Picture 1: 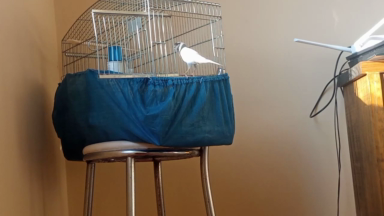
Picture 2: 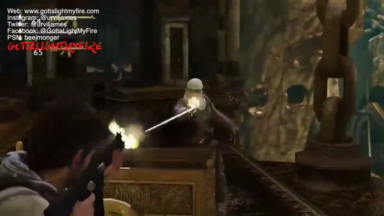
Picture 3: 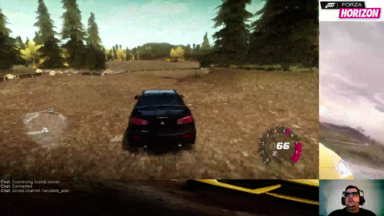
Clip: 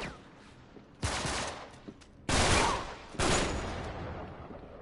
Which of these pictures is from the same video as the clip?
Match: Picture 2